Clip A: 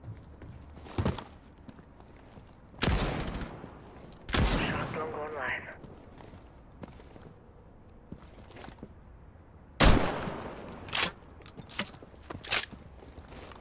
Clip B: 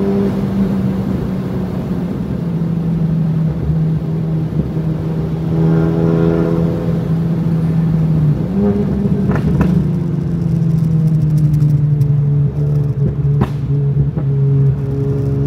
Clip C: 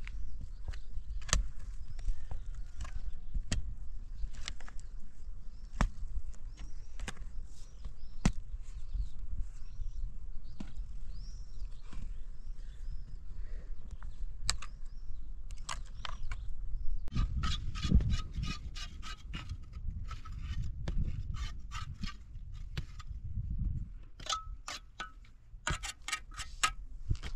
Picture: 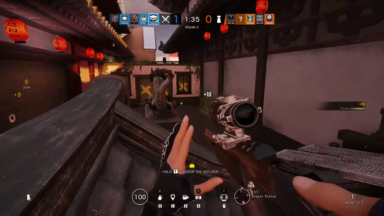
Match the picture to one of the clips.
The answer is A